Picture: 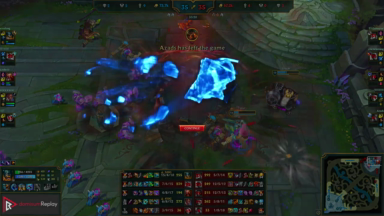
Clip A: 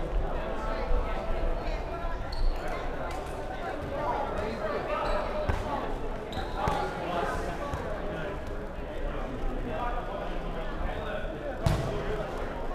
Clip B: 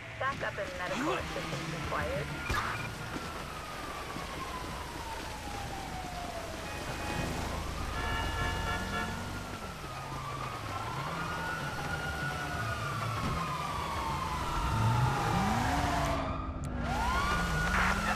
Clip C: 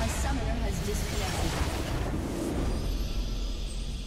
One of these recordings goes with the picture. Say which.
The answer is C